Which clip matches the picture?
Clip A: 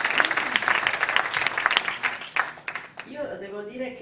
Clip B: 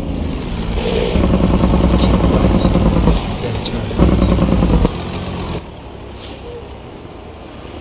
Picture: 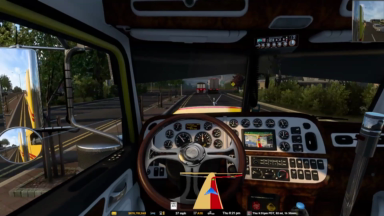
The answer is B